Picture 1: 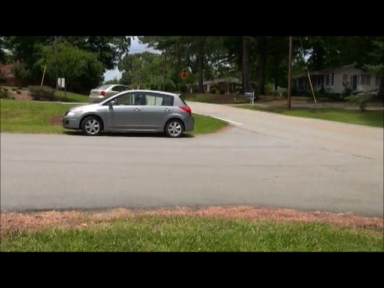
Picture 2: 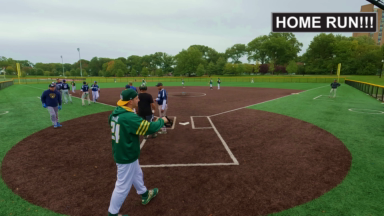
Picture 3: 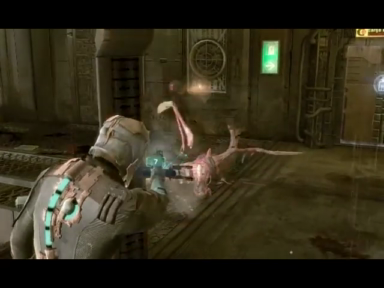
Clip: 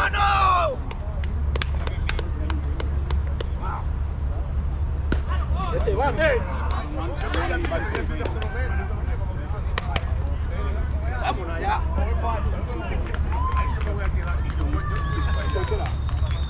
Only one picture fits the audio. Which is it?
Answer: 2